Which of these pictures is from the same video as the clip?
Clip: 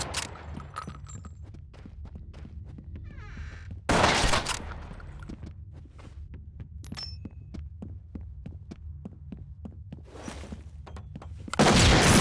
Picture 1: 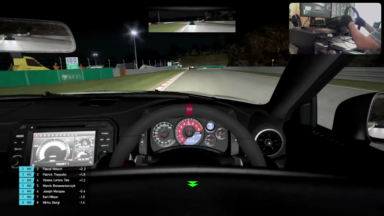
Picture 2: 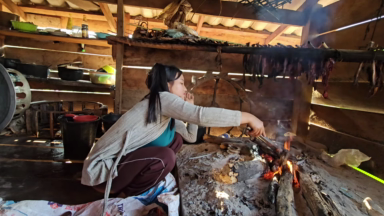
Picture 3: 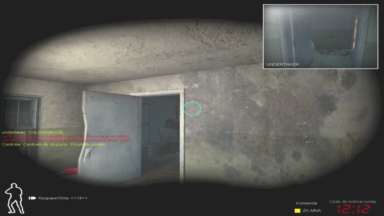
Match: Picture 3